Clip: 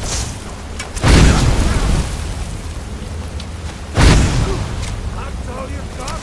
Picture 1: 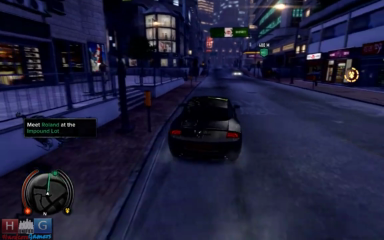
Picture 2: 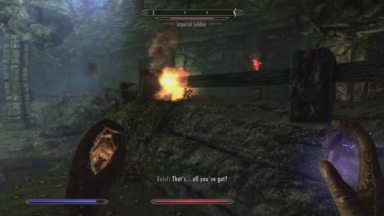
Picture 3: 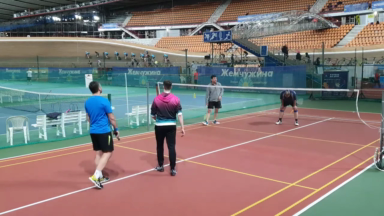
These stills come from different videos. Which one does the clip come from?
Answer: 2